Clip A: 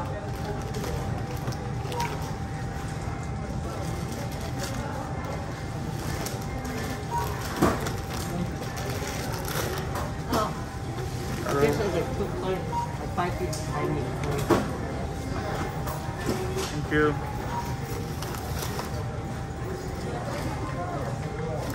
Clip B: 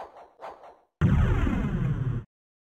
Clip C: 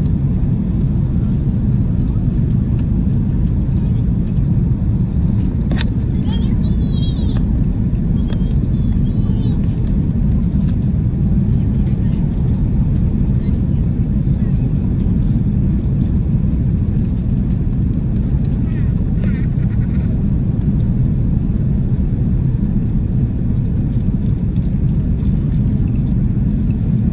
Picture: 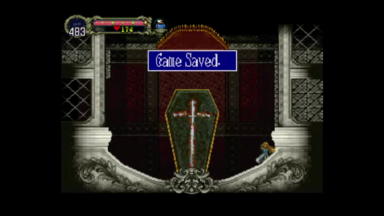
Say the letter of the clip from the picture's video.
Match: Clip B